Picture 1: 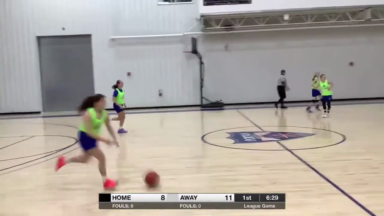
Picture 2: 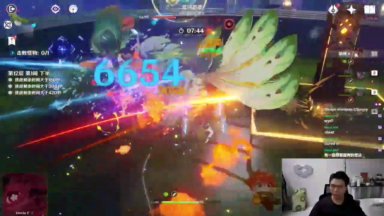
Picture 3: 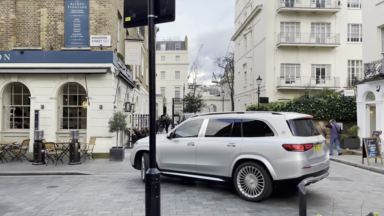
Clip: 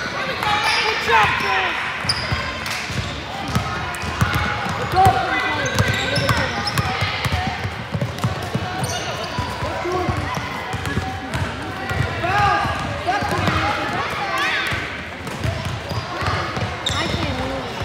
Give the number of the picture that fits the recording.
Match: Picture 1